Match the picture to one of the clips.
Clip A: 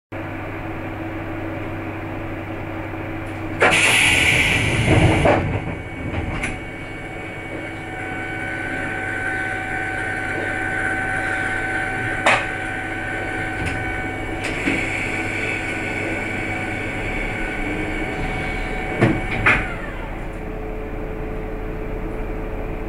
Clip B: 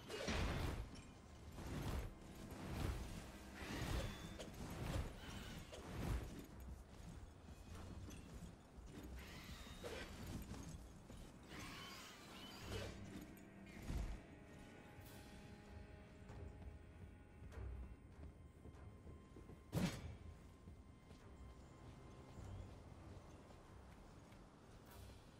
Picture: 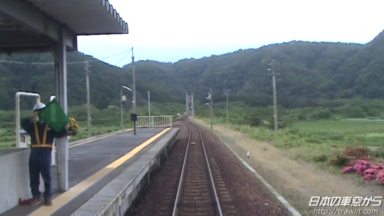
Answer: A